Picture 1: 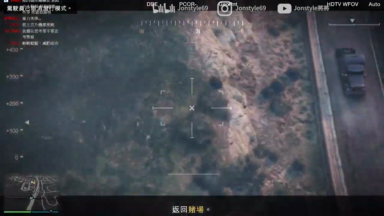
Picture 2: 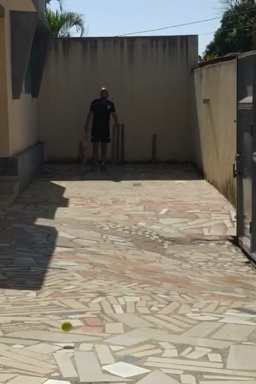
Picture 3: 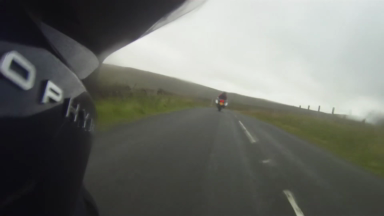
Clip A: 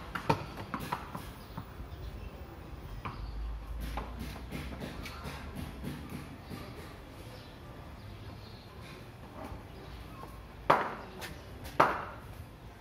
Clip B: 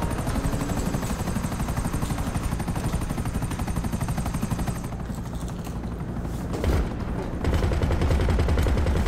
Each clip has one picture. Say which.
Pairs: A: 2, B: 1